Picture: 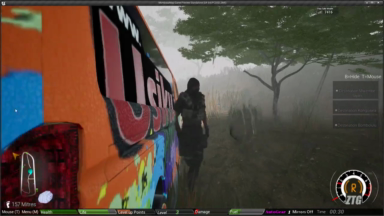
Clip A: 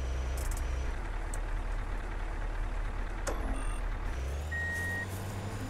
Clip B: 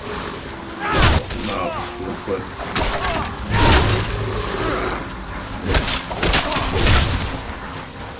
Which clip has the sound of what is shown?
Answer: A